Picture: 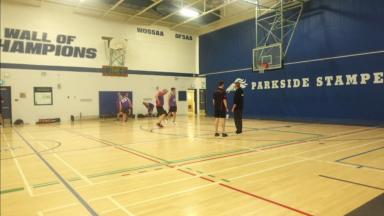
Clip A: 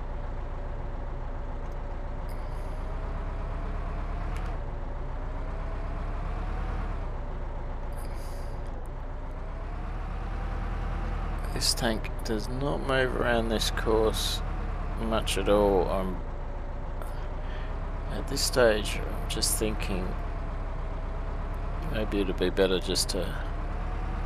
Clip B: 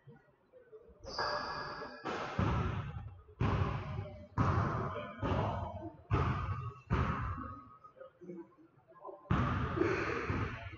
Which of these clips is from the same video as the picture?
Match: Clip B